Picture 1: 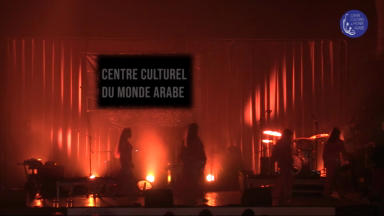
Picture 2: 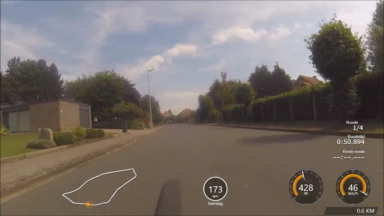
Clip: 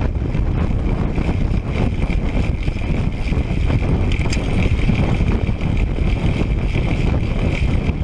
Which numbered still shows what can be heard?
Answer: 2